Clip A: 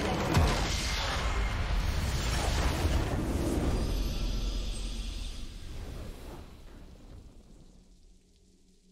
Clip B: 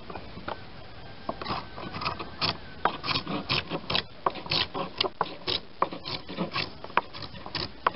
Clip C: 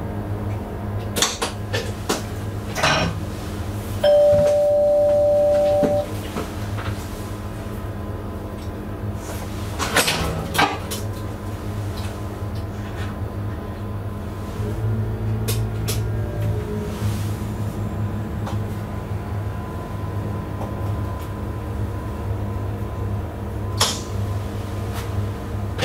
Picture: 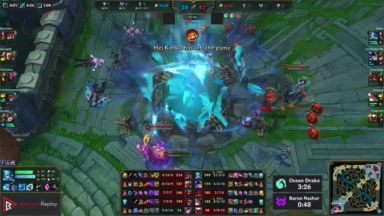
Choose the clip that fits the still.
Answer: A